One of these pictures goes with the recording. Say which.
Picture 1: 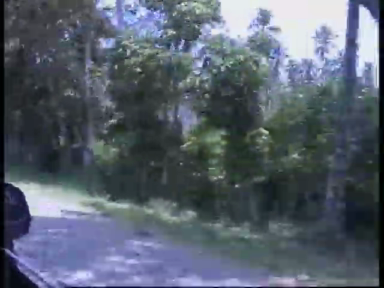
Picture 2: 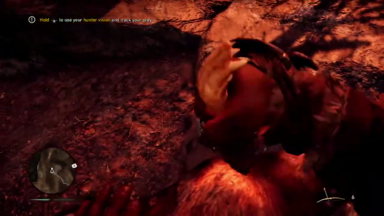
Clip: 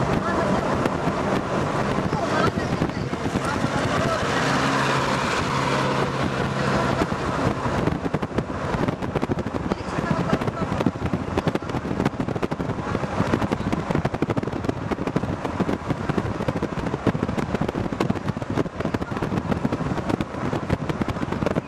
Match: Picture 1